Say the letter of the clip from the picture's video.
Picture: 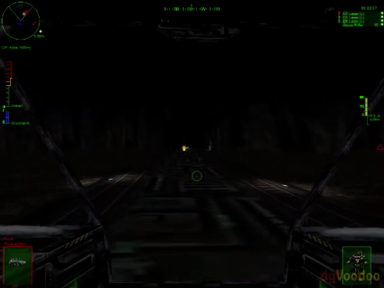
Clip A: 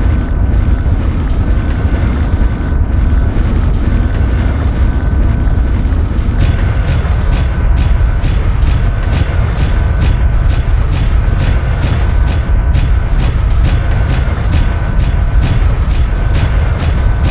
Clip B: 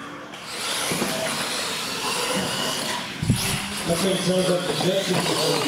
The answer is A